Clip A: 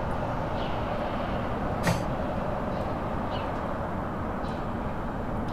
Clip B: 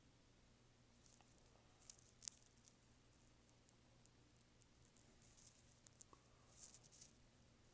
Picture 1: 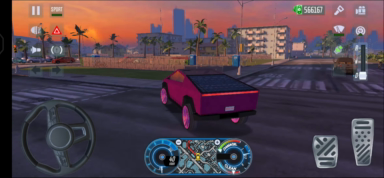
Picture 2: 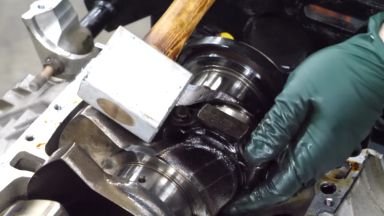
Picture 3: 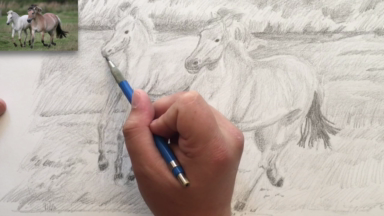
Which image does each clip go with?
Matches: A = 1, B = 3